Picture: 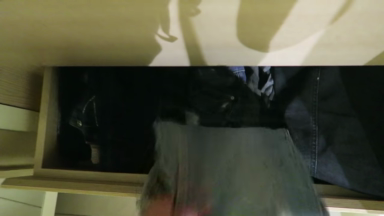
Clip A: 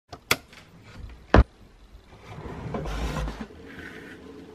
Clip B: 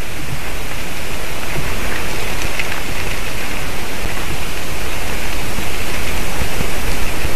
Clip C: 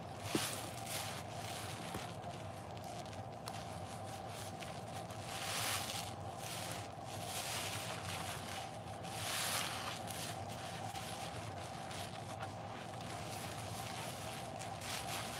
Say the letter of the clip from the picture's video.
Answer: A